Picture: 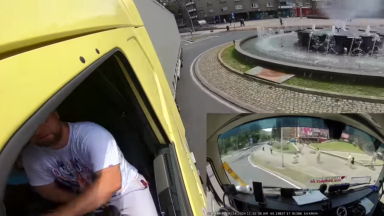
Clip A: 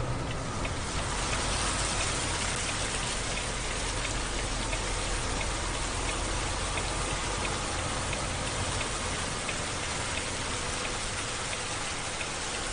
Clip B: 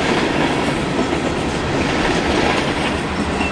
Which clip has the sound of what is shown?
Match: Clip A